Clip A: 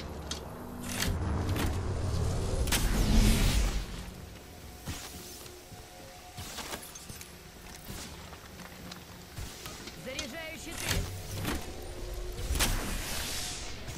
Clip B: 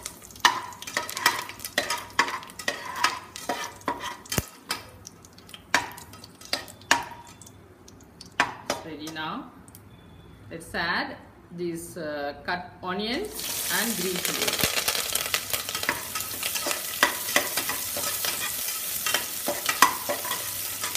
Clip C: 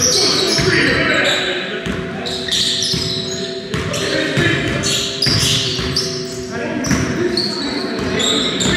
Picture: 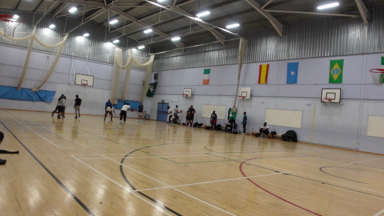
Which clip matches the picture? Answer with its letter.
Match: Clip C